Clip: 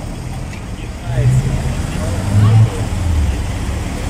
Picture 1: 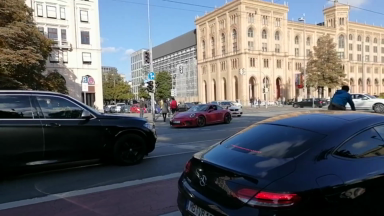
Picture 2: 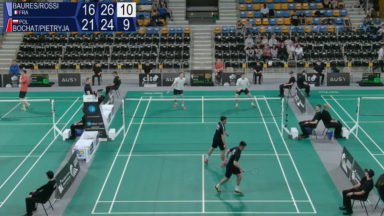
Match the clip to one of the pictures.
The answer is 1